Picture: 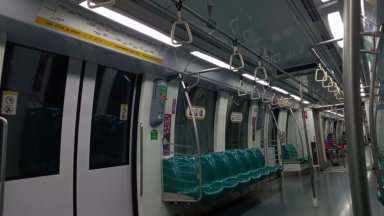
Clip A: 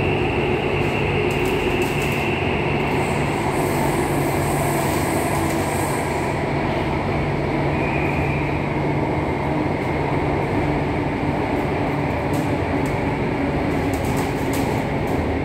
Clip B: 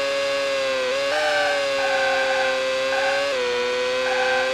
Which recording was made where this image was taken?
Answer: A